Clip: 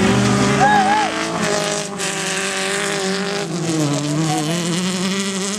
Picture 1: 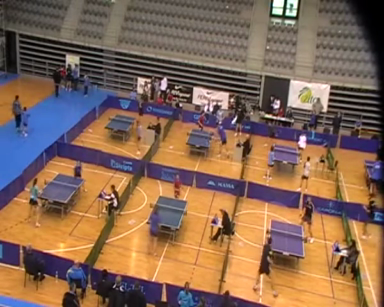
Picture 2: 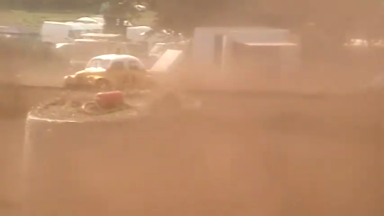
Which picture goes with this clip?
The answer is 2